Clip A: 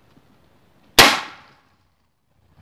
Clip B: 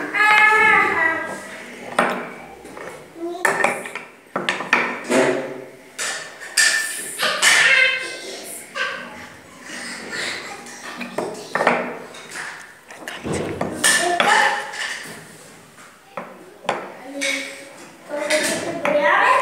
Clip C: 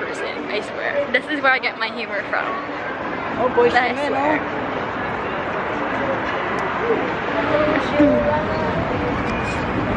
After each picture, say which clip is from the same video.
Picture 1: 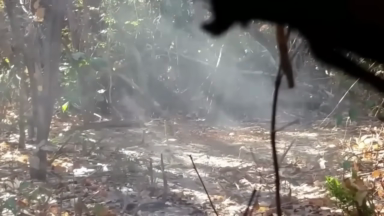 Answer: A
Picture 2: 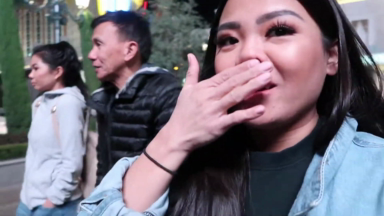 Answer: C